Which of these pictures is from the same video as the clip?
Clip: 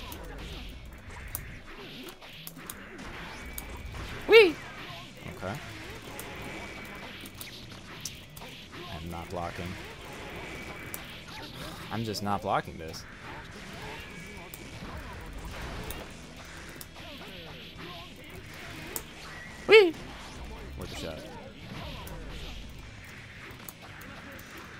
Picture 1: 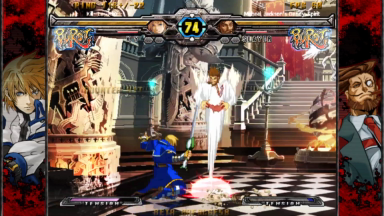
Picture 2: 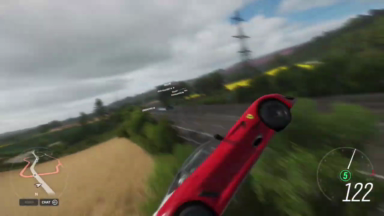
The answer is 1